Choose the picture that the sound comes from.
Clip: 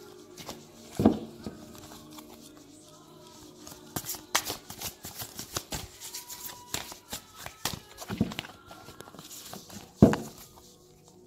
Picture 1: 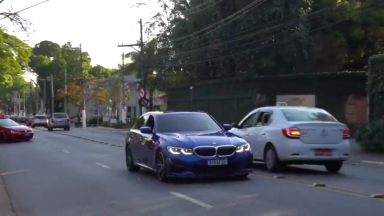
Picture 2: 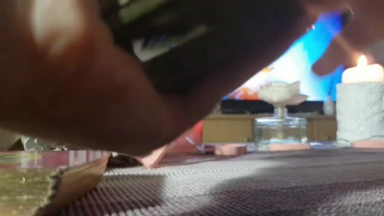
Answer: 2